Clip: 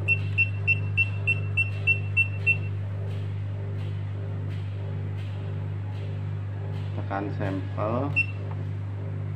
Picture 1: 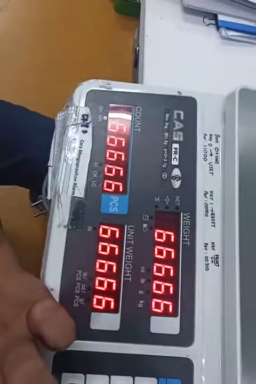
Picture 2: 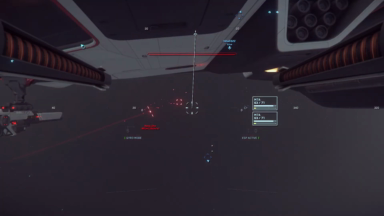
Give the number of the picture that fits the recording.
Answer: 1